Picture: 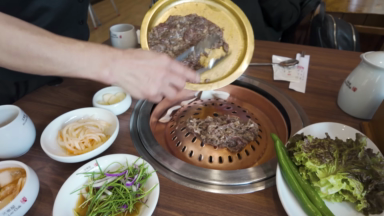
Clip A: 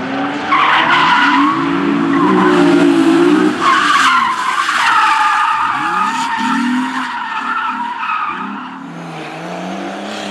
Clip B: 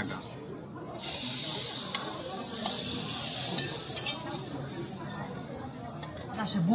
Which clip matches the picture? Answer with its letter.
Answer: B